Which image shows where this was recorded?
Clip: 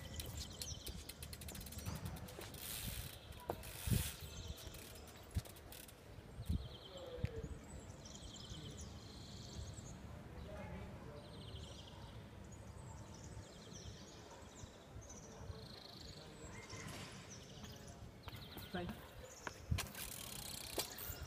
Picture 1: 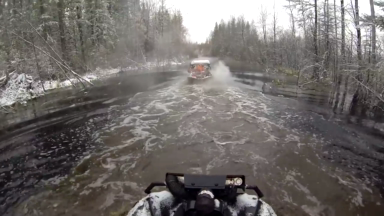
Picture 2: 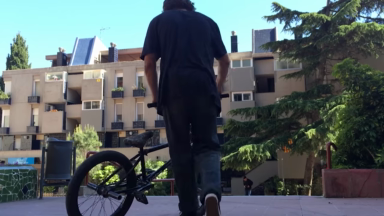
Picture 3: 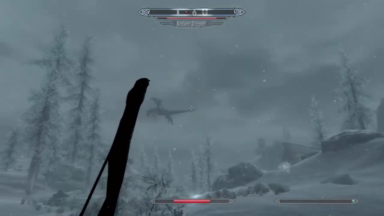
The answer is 2